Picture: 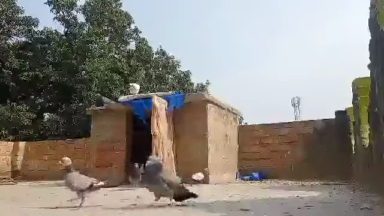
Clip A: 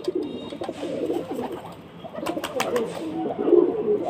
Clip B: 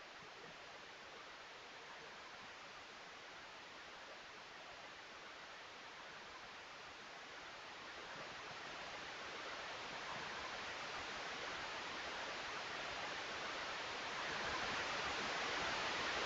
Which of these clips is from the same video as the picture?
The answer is A